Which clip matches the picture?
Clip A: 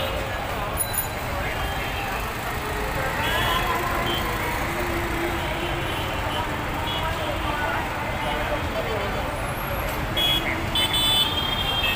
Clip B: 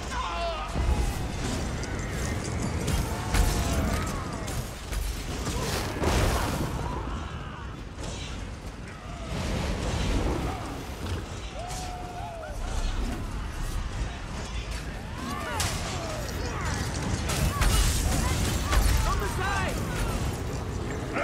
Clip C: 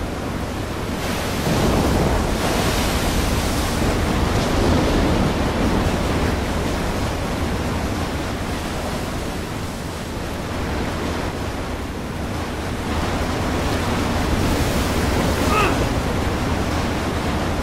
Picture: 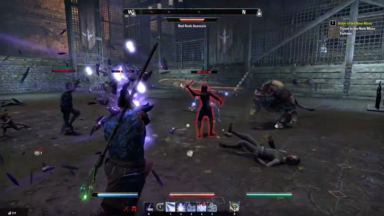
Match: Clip B